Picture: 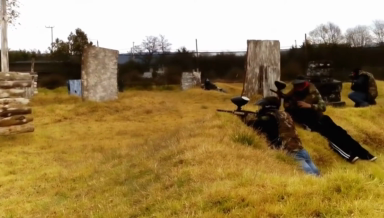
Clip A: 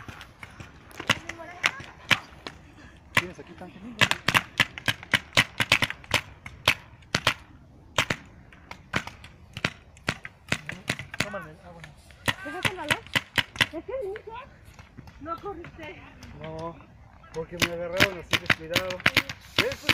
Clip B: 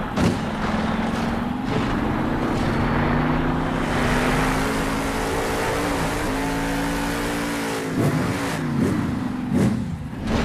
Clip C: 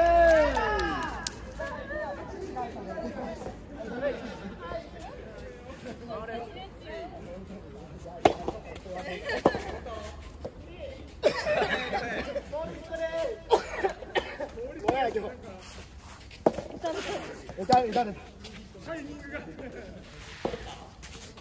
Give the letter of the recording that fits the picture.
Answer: A